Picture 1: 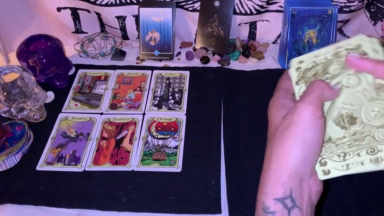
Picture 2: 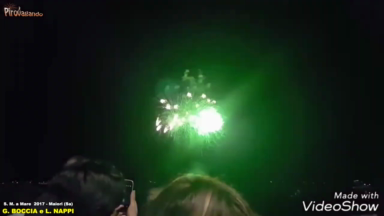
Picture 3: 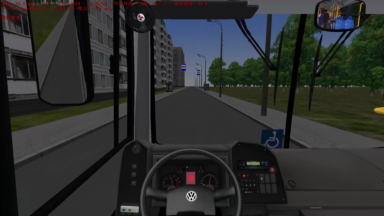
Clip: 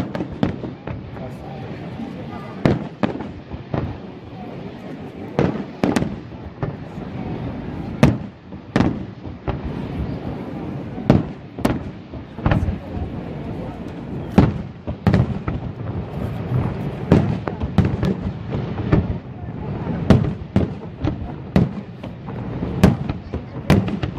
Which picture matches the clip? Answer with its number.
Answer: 2